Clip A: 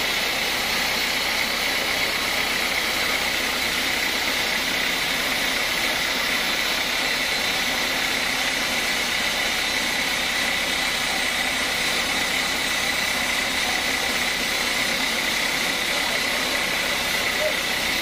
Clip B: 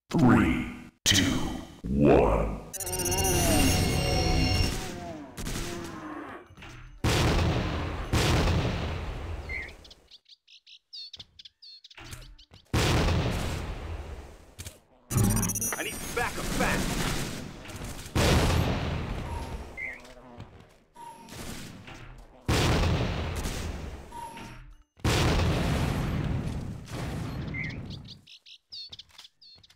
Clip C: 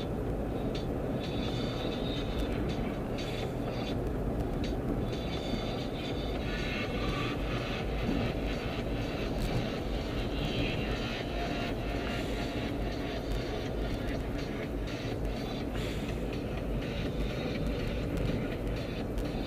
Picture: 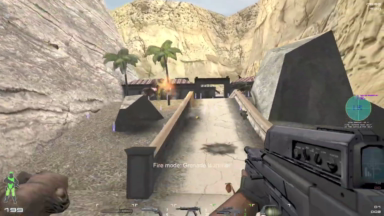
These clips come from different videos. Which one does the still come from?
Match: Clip B